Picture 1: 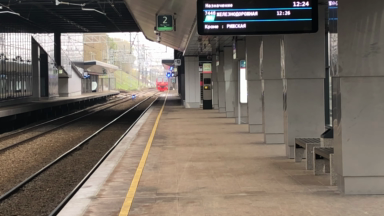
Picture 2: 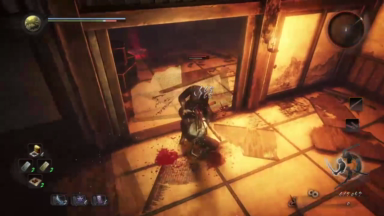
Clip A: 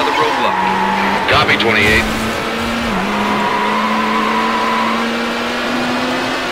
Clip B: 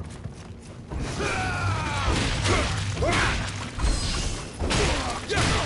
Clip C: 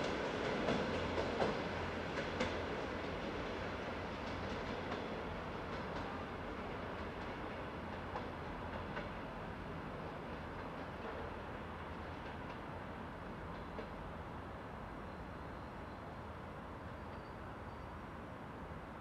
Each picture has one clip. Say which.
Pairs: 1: C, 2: B